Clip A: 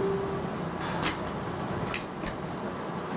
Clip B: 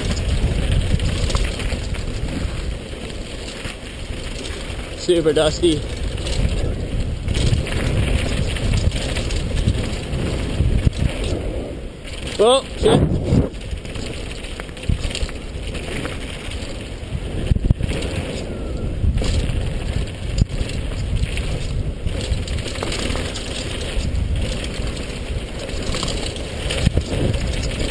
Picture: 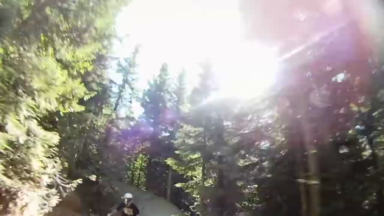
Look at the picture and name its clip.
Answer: B